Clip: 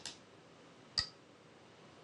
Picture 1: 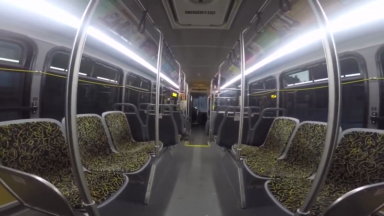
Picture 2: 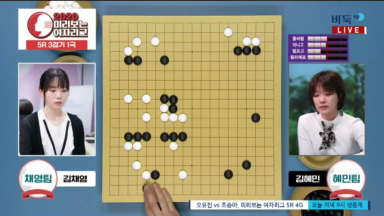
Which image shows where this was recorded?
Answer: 2